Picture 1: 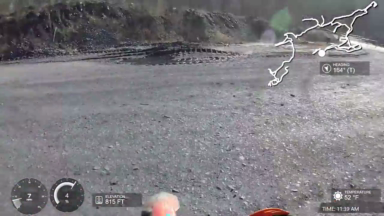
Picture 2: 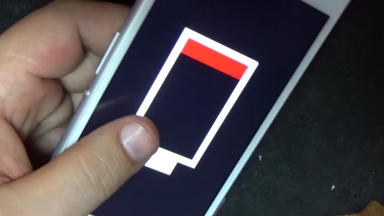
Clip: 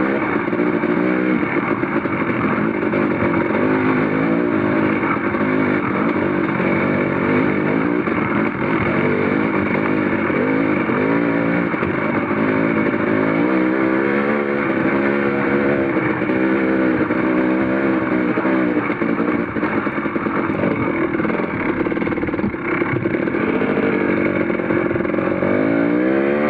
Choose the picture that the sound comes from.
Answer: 1